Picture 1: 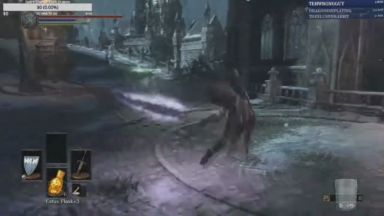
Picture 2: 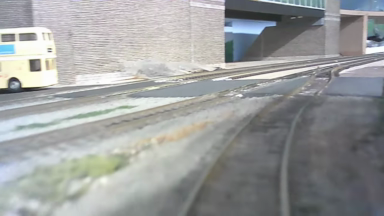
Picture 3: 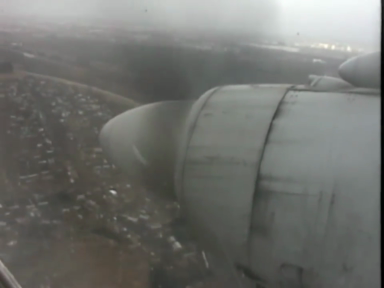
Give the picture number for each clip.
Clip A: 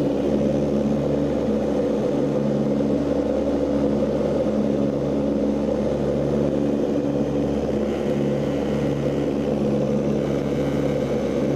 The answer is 3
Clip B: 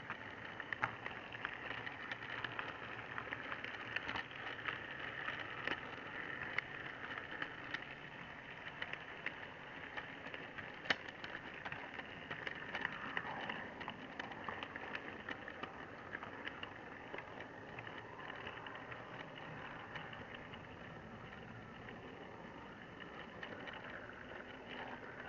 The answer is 2